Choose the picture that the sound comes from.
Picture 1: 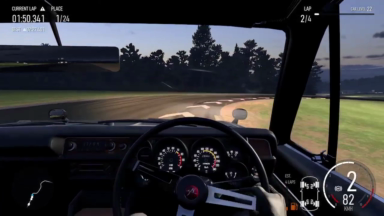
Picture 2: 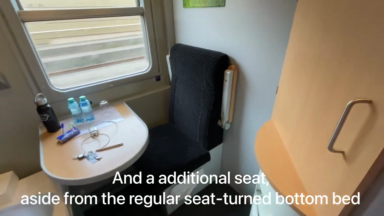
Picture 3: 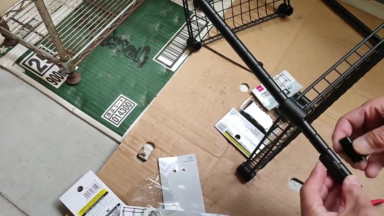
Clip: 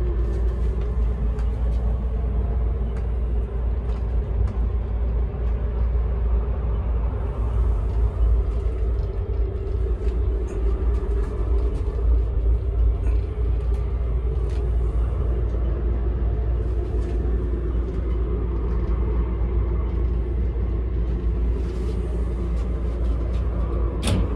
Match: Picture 2